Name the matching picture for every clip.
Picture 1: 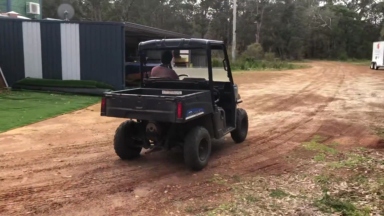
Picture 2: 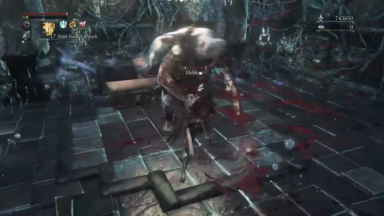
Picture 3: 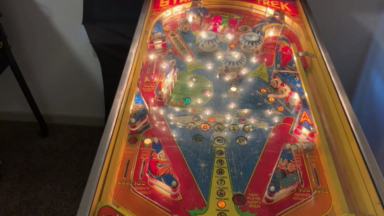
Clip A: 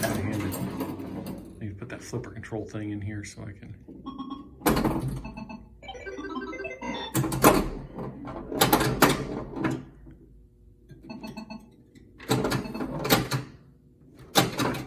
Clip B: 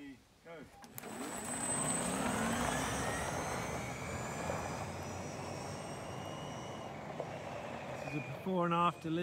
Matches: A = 3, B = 1